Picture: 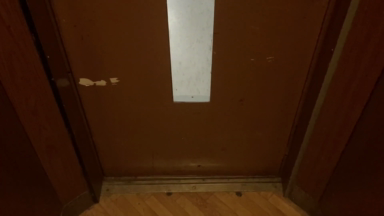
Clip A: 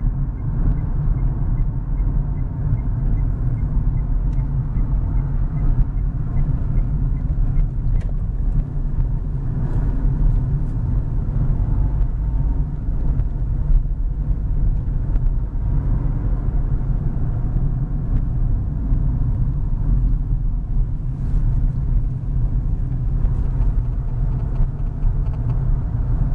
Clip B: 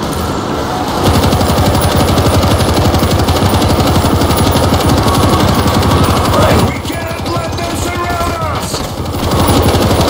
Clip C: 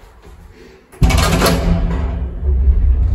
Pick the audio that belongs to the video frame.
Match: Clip C